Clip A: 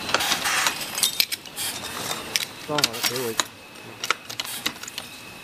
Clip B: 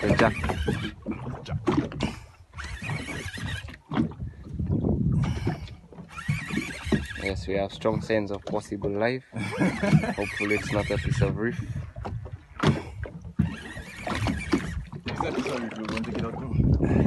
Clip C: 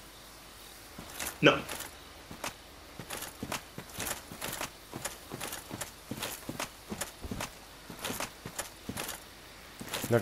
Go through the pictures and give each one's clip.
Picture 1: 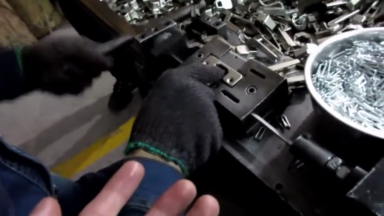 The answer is A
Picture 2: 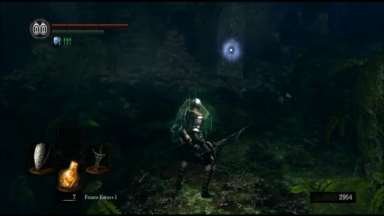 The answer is C